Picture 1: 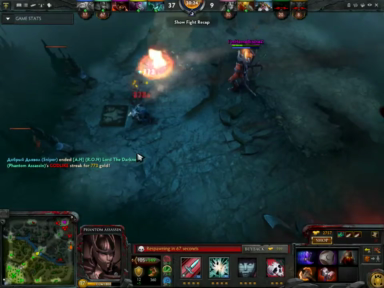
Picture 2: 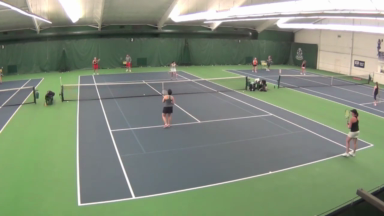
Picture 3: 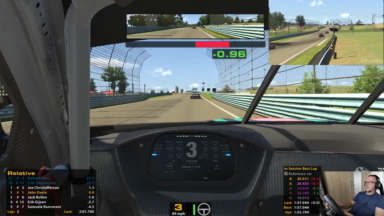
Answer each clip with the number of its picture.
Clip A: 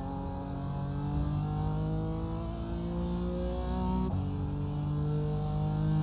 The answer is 3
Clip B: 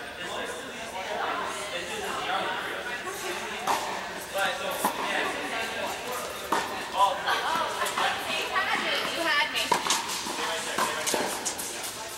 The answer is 2